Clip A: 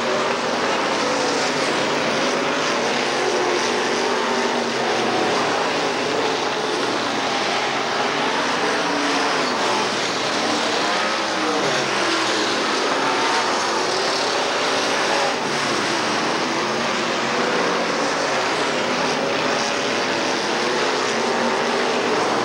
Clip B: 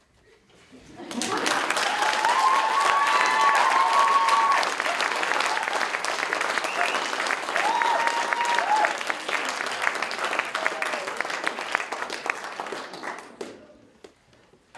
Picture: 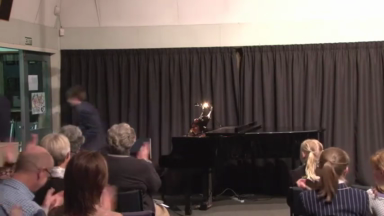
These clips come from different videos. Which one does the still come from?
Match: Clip B